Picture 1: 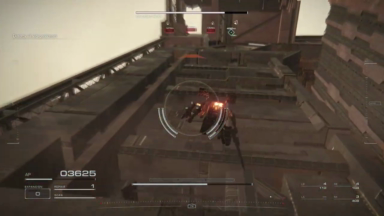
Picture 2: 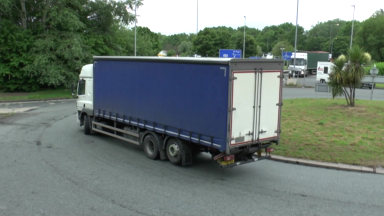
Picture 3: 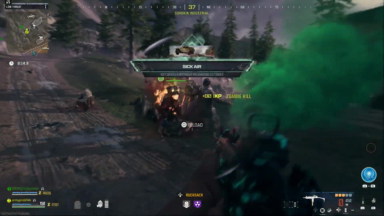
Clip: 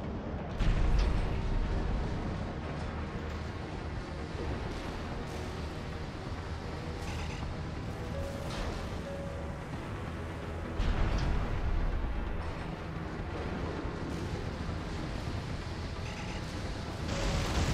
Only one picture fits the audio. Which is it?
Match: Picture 1